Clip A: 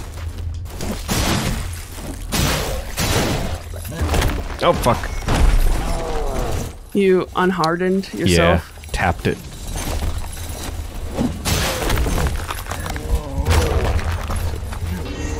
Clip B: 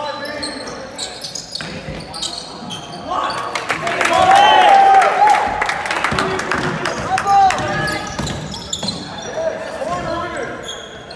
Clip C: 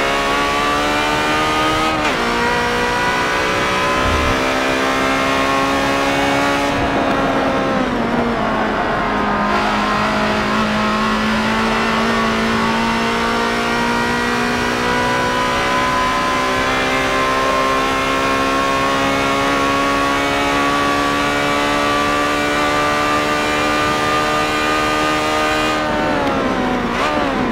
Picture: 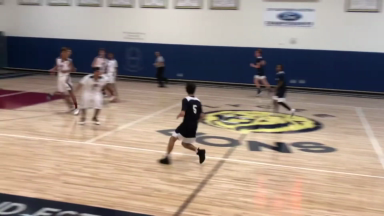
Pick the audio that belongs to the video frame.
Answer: B